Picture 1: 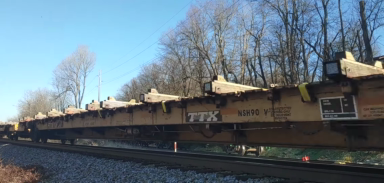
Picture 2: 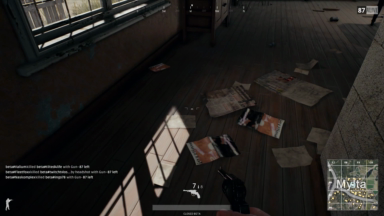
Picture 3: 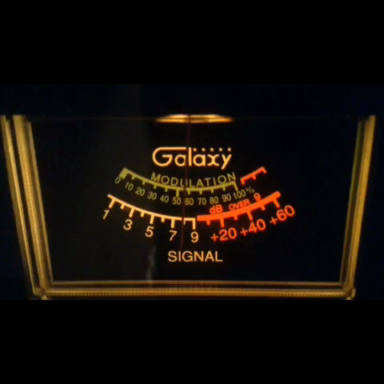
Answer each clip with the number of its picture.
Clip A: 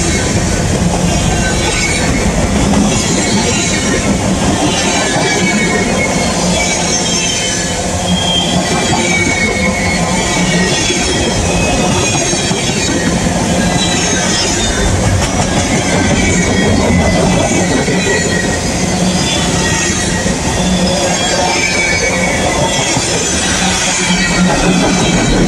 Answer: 1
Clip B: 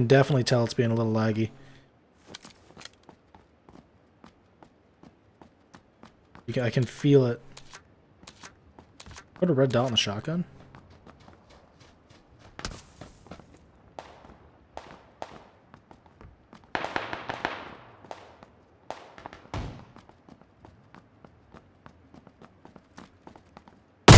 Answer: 2